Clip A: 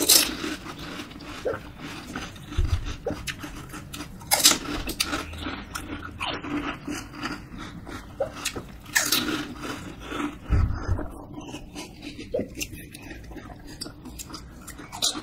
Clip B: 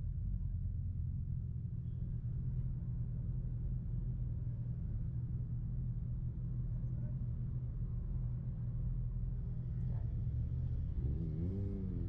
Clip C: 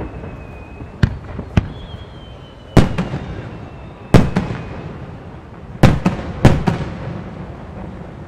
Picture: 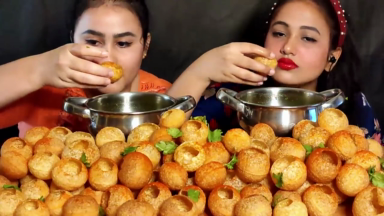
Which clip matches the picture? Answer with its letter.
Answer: A